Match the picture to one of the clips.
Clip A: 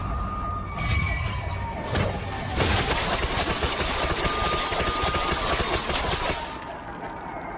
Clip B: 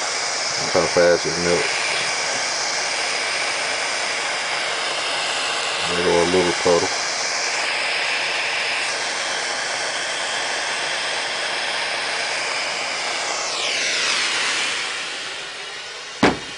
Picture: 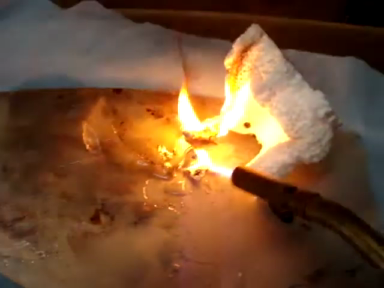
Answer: B